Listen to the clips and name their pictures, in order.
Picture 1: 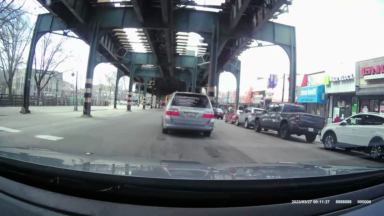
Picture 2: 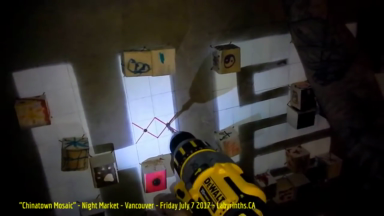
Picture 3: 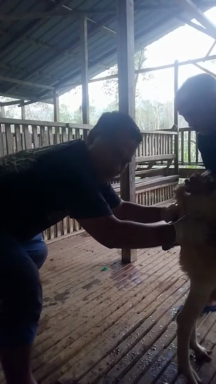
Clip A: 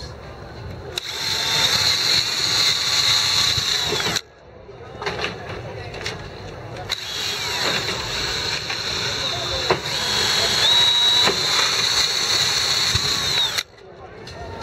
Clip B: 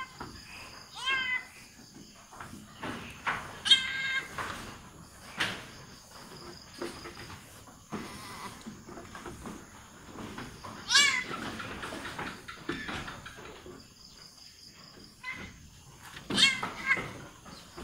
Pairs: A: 2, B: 3